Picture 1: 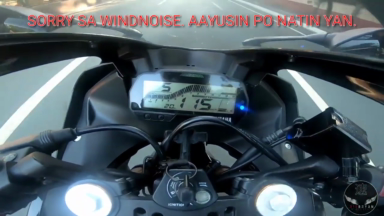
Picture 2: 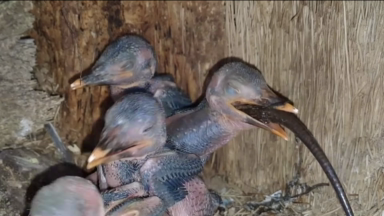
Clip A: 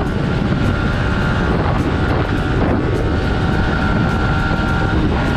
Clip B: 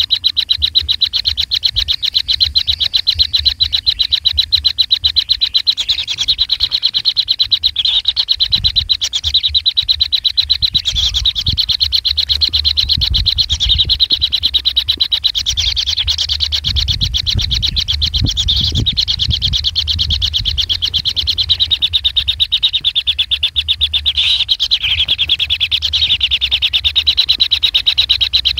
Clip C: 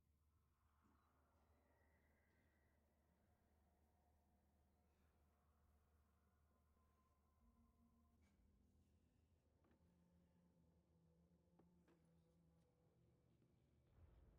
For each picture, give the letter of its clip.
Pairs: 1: A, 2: B